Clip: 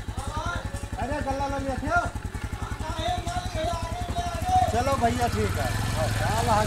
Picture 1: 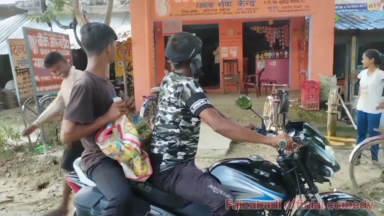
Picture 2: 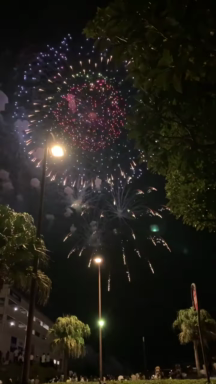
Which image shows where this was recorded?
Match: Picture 1